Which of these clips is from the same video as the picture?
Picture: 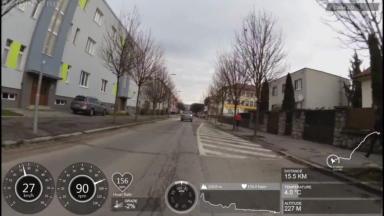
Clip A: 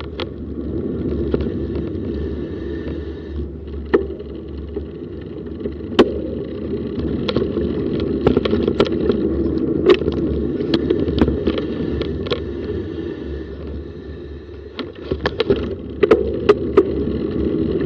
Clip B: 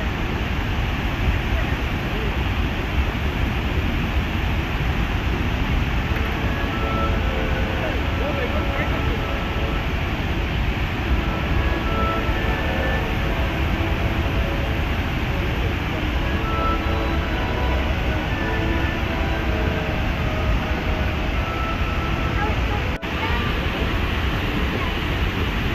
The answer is A